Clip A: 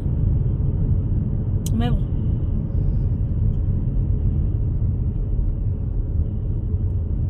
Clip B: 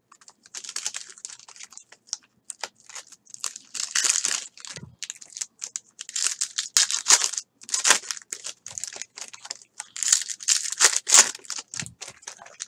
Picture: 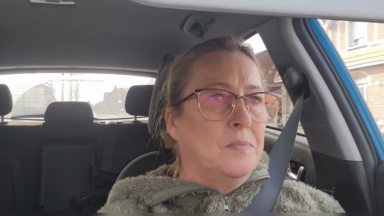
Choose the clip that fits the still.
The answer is A